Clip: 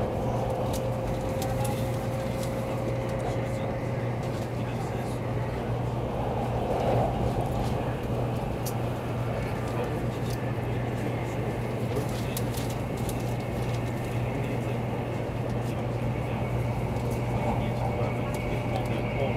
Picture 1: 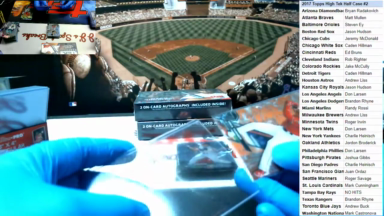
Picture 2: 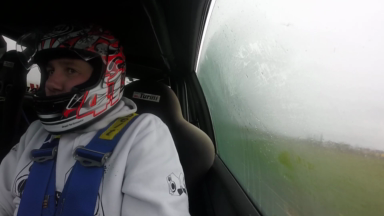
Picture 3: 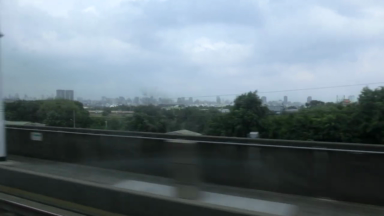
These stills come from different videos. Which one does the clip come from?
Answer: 3